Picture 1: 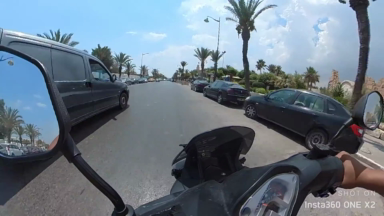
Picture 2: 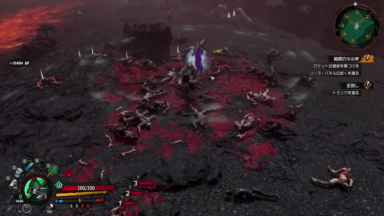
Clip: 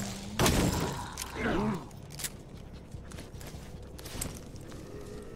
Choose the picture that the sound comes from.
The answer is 2